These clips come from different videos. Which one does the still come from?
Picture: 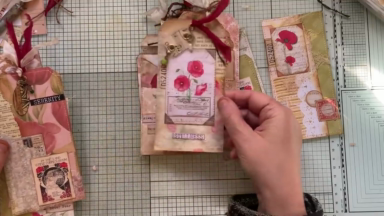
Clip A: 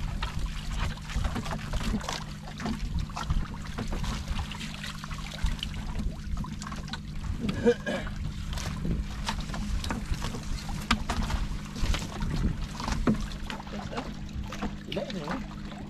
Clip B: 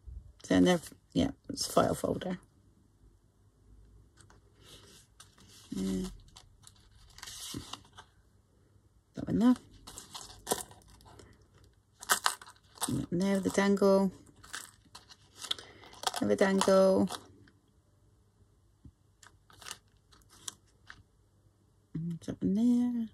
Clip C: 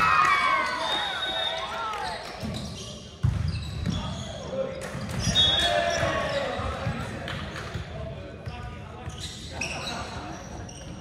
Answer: B